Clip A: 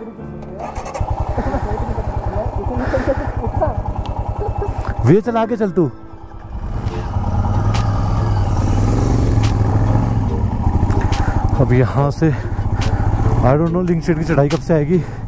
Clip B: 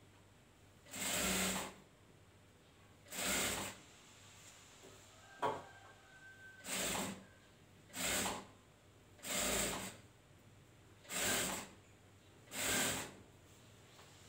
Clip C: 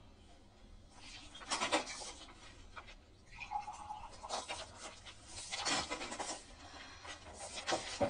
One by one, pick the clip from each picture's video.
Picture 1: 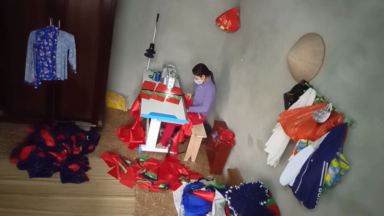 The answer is B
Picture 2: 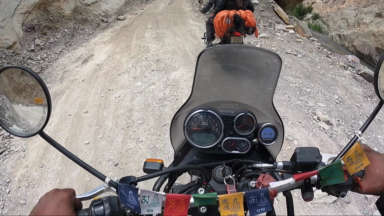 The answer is A